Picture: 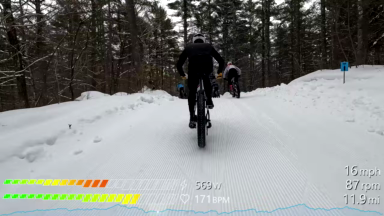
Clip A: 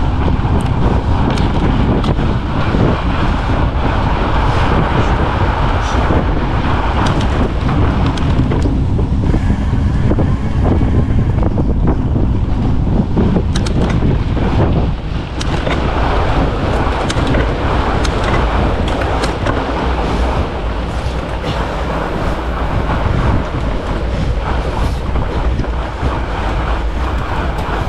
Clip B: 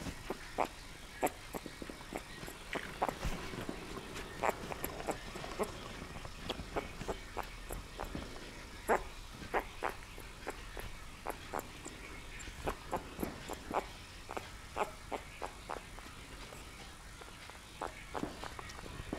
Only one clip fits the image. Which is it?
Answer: A